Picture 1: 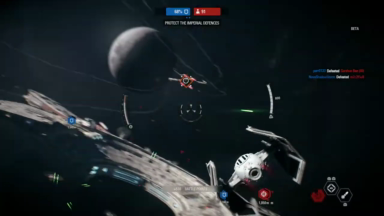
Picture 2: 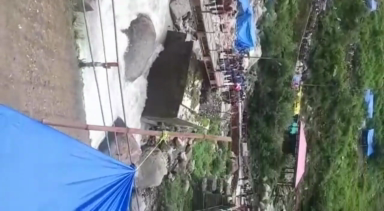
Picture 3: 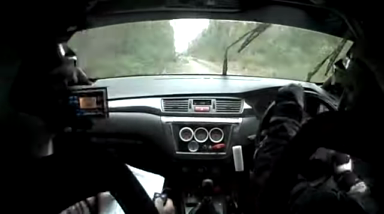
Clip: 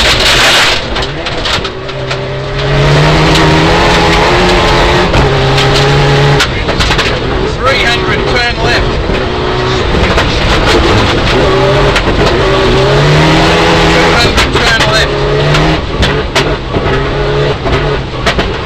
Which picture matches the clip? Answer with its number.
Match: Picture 3